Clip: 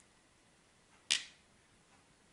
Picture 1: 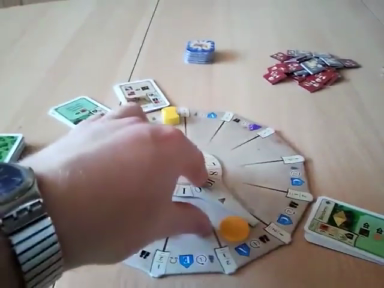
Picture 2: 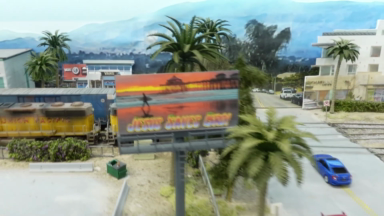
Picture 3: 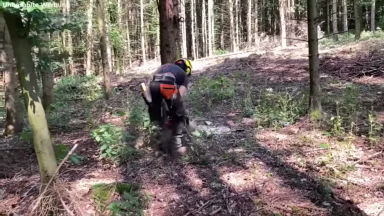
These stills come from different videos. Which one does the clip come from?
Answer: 1